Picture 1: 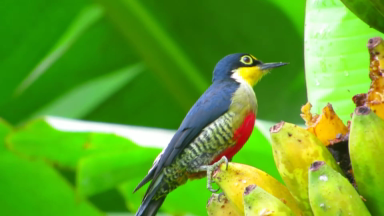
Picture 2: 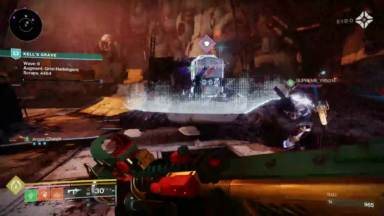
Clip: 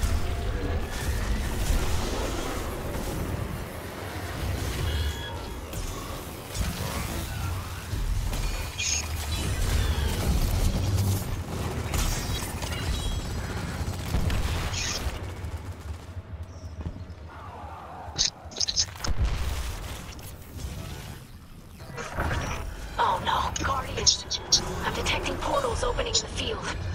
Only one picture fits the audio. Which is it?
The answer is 2